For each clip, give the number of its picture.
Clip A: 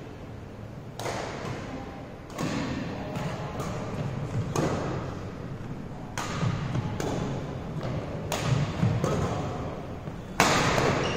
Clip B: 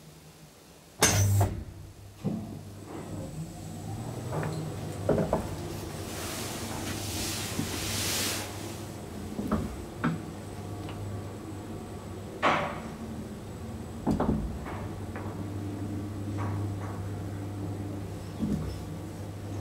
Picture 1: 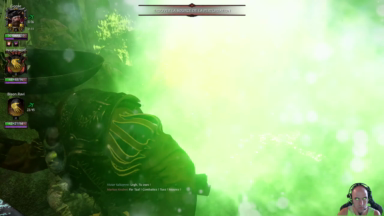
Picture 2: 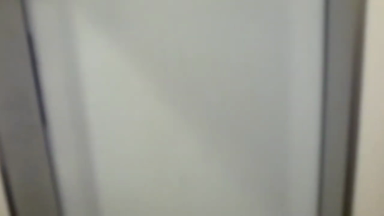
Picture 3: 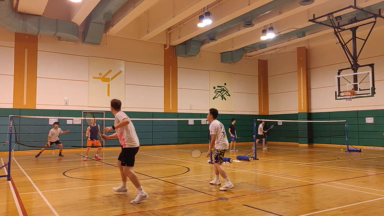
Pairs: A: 3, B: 2